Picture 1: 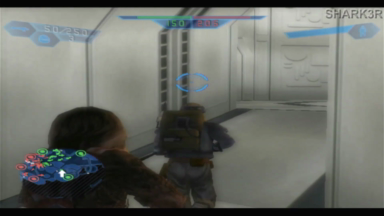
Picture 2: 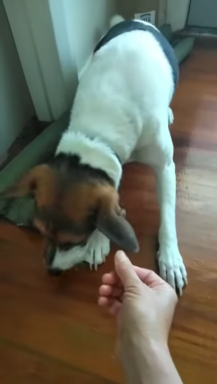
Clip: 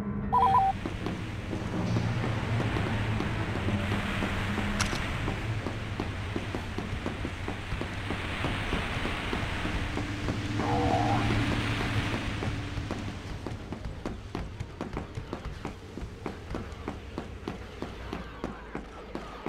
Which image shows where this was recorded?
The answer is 1